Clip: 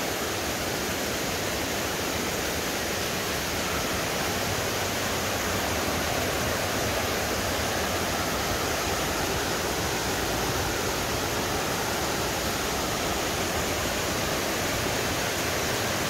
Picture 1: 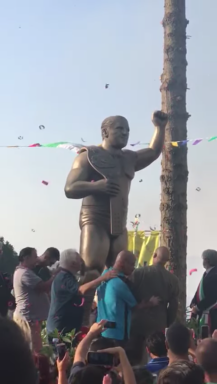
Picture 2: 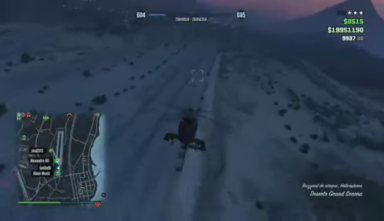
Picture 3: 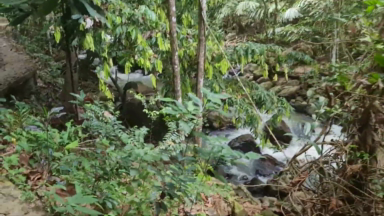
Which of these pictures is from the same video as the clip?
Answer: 3